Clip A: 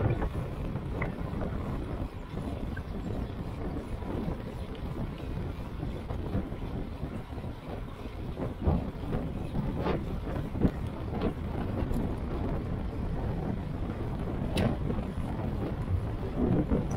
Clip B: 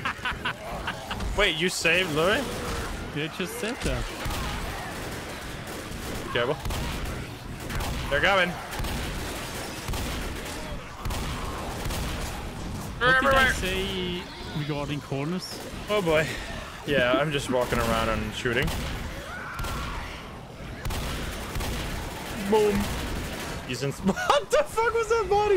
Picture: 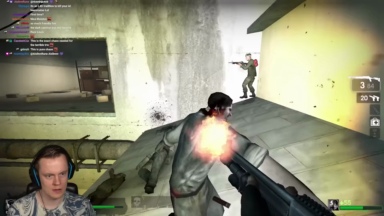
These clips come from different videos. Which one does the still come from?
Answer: B